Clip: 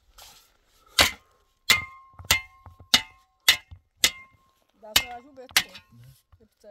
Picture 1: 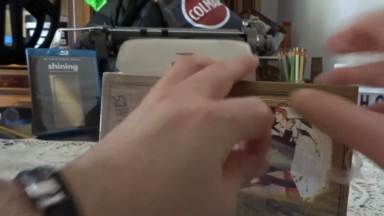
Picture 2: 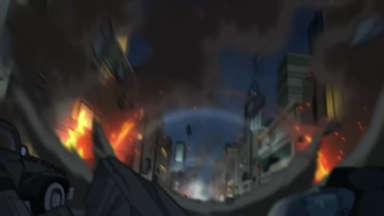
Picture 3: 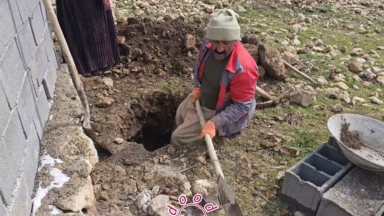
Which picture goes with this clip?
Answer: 3